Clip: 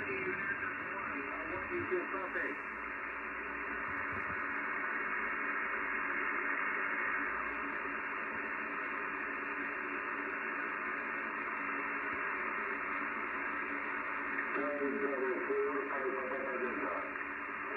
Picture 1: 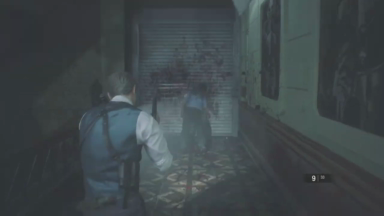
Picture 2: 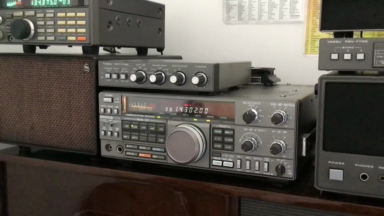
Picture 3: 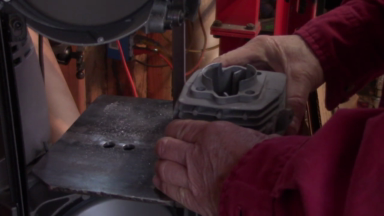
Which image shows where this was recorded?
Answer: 2